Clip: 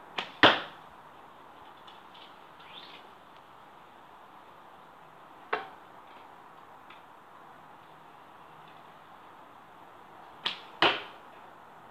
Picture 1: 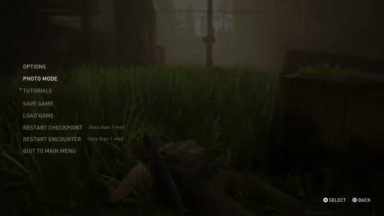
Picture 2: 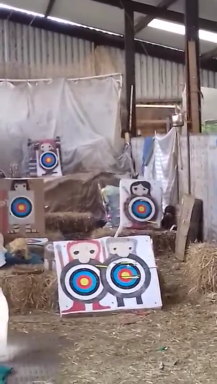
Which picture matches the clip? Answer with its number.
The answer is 2